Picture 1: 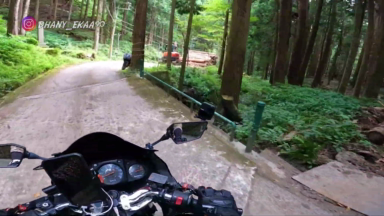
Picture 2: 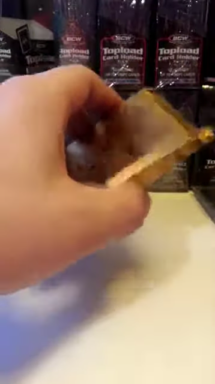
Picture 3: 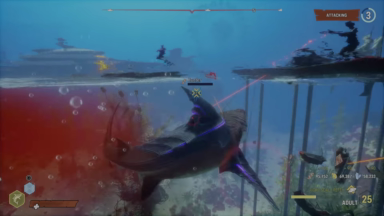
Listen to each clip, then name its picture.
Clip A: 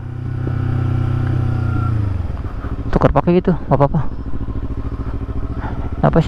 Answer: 1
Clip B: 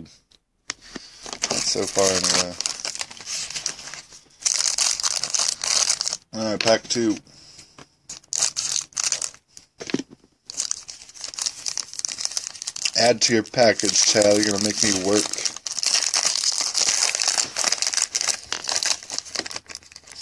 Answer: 2